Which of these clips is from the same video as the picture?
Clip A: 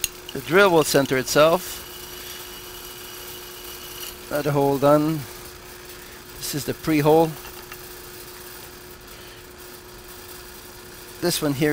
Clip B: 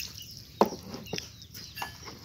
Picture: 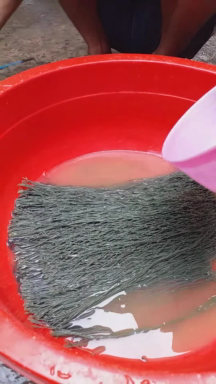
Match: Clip B